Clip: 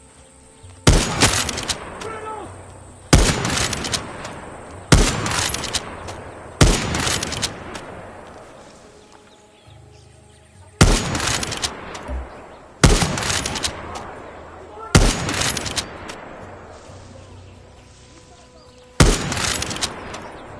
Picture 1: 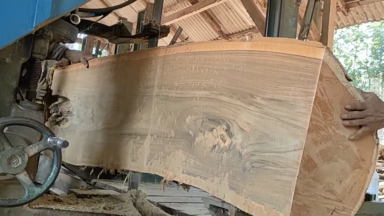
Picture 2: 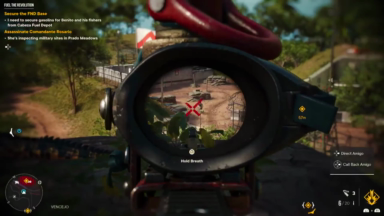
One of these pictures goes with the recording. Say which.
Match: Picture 2